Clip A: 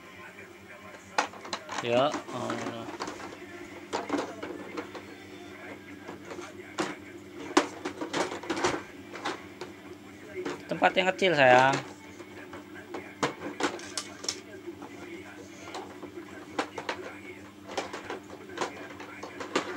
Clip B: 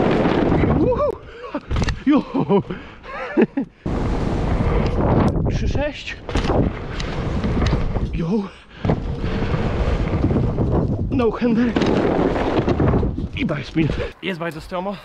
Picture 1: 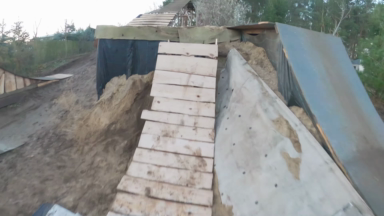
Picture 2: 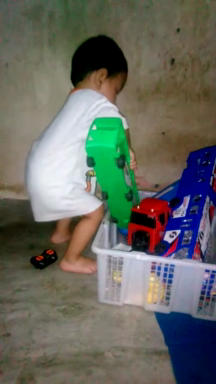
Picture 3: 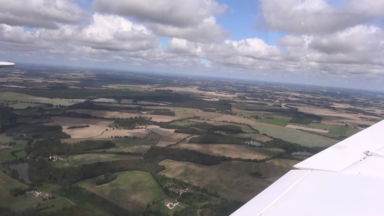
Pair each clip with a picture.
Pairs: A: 2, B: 1